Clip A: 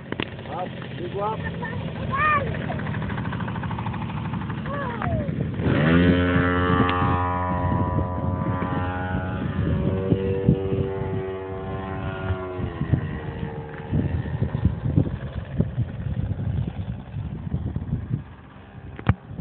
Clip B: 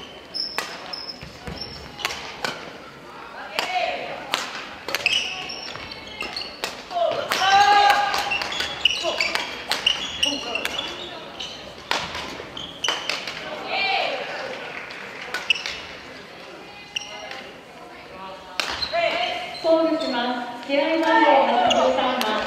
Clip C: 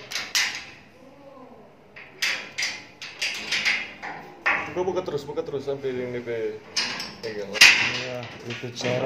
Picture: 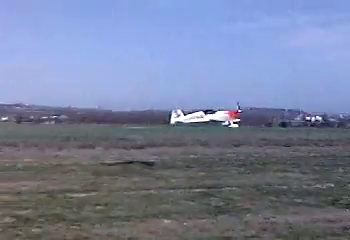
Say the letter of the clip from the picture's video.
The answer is A